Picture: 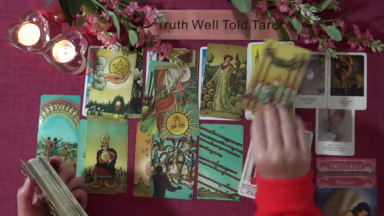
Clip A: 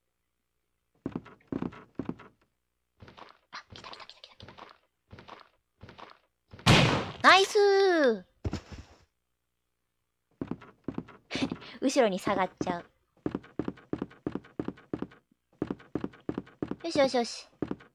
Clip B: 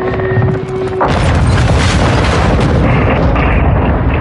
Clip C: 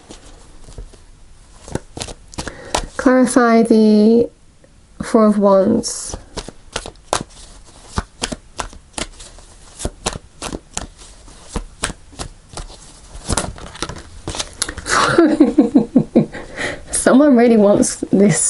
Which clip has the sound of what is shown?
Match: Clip C